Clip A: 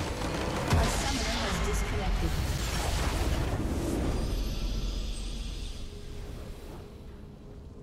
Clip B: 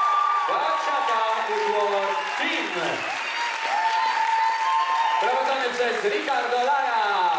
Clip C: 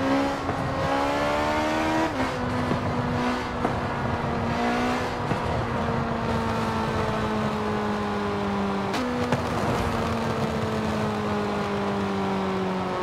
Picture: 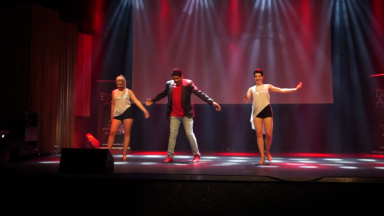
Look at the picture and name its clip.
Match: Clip B